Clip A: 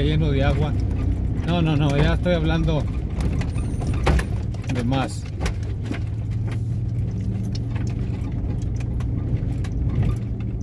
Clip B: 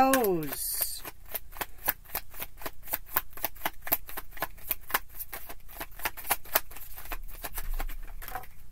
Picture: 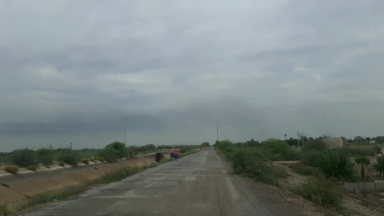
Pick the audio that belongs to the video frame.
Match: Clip A